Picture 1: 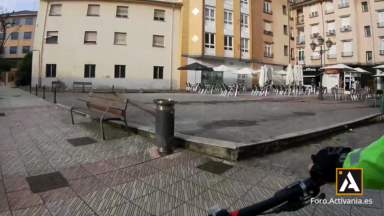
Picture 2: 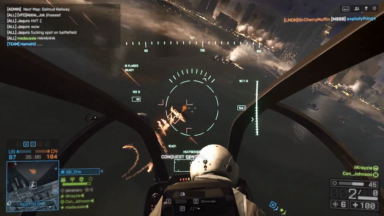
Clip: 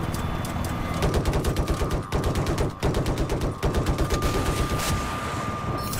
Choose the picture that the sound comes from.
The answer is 2